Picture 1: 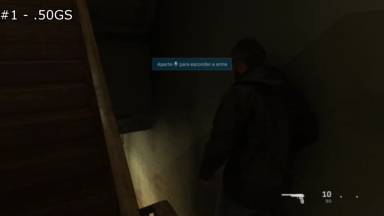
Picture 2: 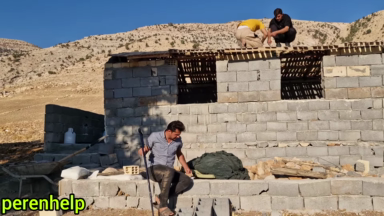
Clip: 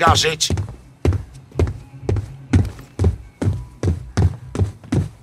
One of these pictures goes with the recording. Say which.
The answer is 1